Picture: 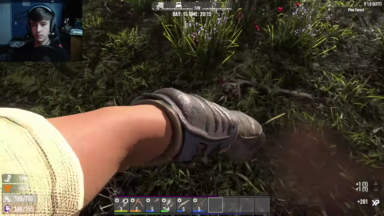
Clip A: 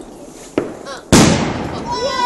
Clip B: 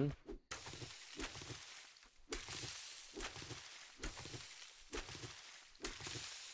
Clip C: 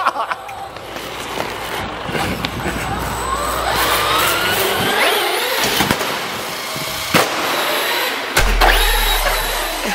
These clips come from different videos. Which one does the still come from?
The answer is B